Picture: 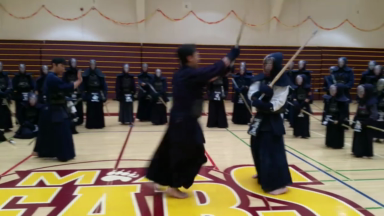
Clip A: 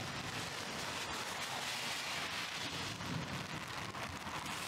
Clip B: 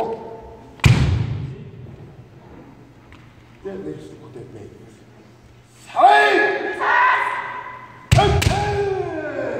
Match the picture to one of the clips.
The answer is B